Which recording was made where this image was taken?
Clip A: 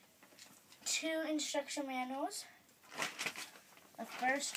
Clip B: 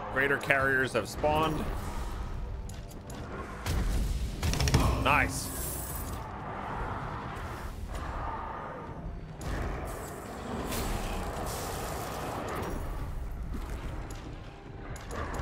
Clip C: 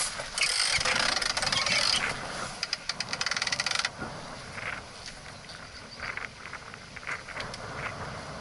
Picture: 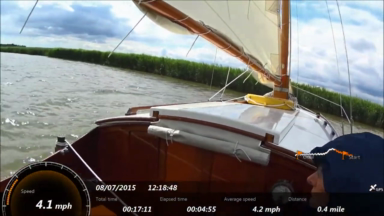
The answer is C